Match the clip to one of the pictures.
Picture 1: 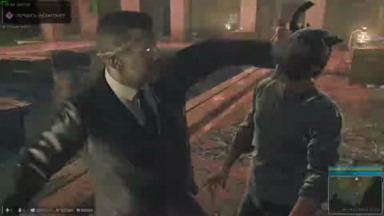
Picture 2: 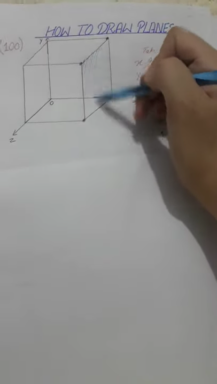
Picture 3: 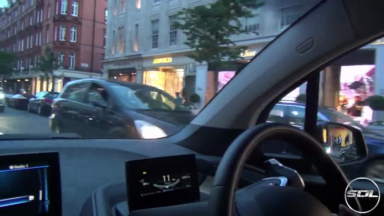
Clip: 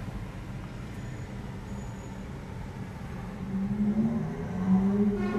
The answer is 3